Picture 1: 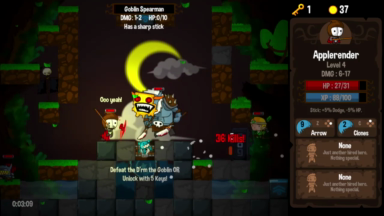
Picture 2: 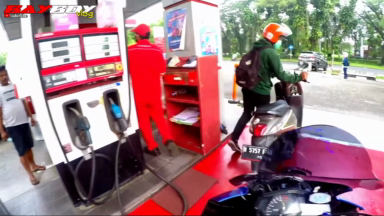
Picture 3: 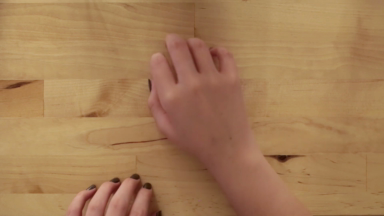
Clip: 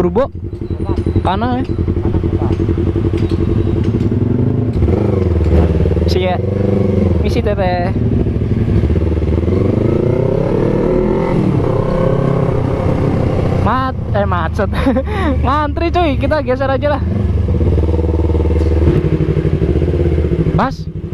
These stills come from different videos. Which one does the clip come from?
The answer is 2